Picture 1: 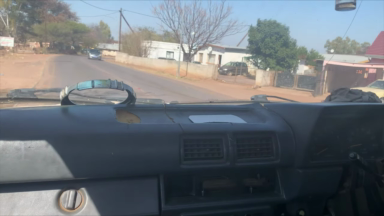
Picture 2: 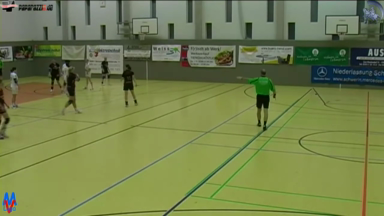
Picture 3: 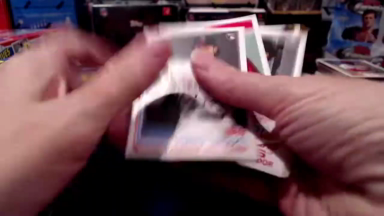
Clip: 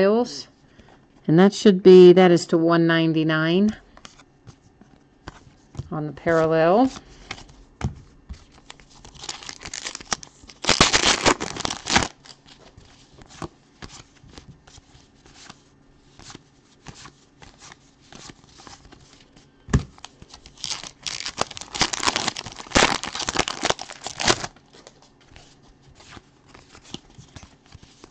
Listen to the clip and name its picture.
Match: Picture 3